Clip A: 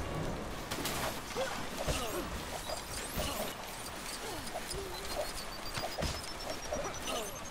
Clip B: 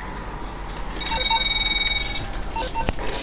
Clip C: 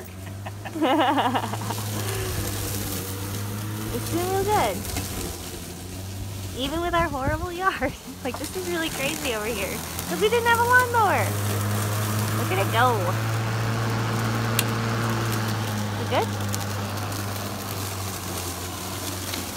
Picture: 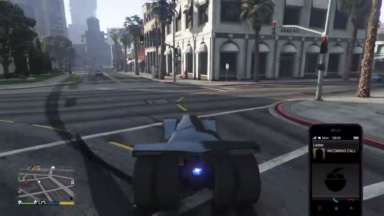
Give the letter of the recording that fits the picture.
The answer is B